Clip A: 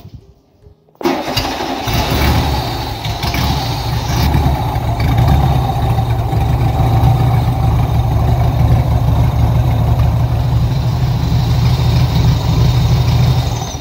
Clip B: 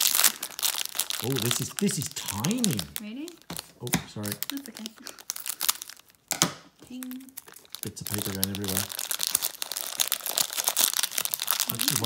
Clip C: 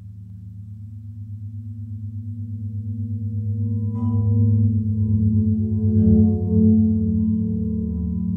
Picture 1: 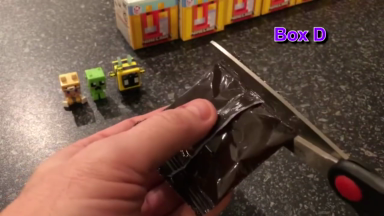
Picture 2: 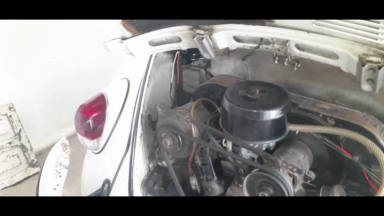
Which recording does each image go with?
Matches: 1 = B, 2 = A